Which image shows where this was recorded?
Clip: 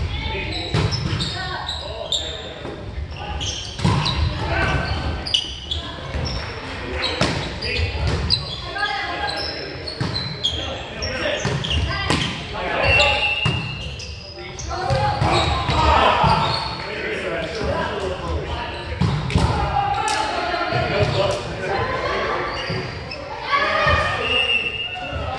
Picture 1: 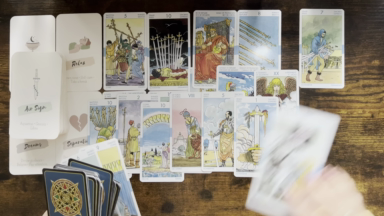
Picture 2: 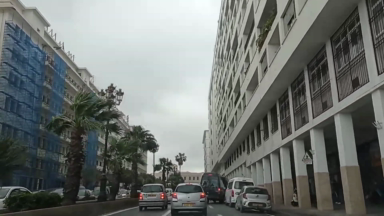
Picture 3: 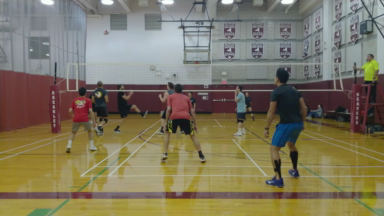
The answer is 3